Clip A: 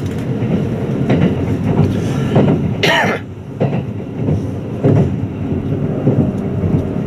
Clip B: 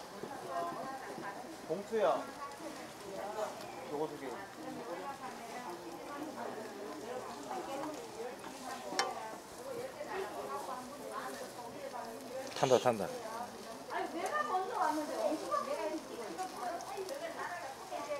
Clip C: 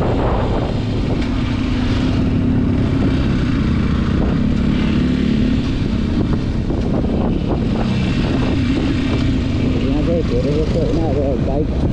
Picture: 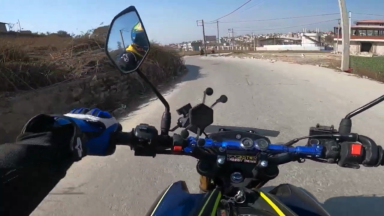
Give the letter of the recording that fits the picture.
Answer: C